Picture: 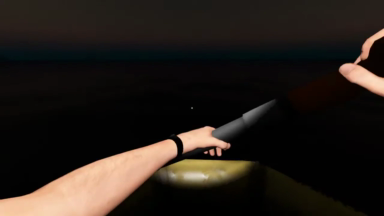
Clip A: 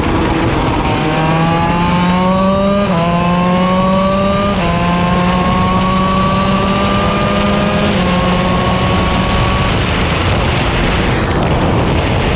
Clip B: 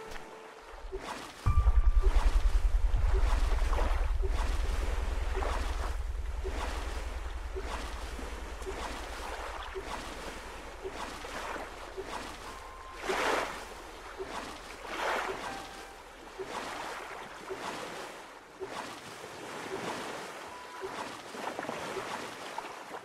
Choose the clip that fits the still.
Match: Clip B